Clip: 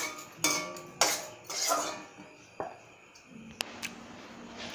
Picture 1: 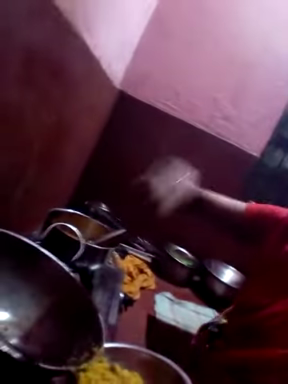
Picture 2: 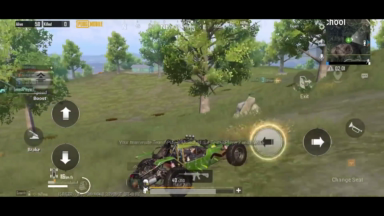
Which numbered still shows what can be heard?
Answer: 1